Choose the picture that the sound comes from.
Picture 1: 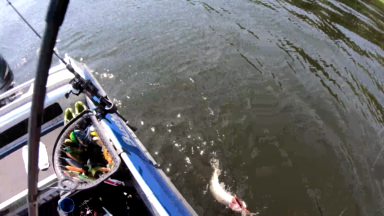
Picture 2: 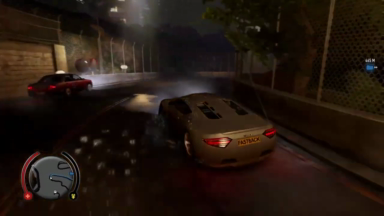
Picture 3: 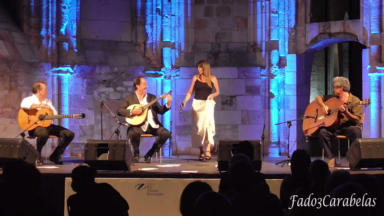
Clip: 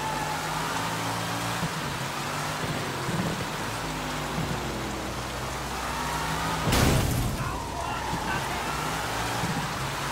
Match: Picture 2